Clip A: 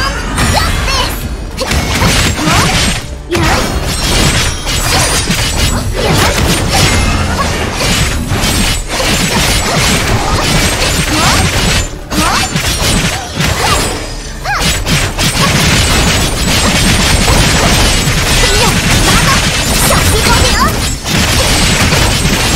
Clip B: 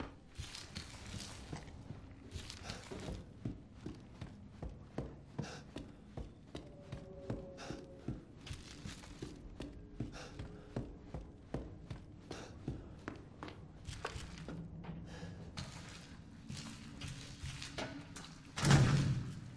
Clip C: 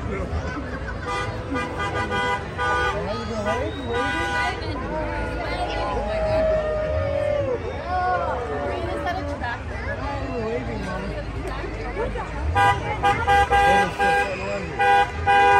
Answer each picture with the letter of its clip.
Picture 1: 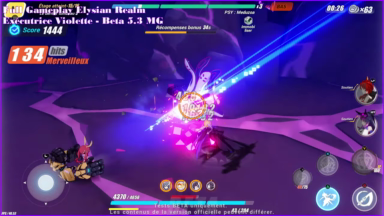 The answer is A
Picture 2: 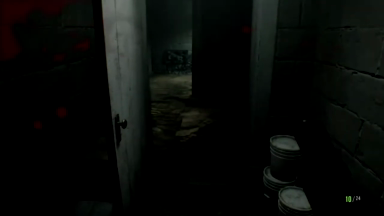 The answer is B